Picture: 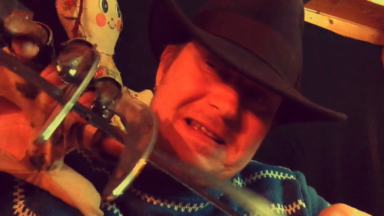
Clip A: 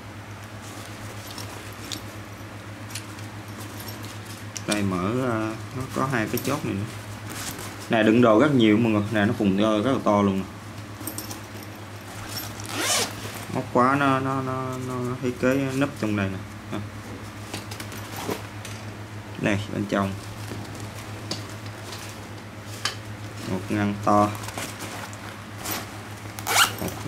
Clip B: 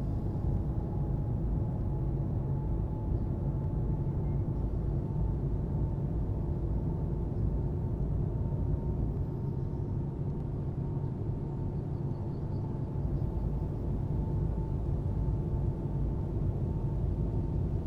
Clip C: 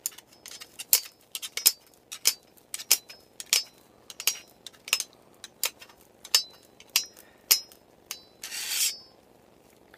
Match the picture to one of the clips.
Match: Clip C